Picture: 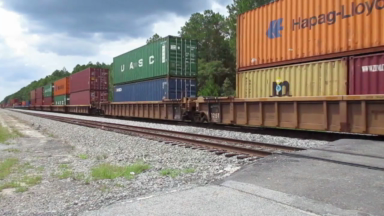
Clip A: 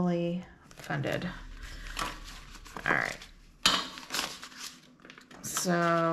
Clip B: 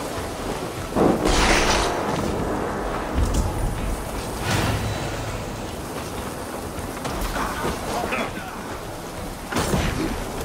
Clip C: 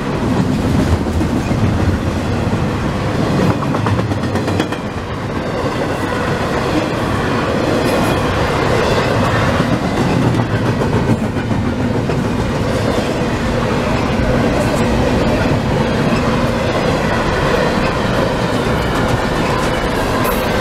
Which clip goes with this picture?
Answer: C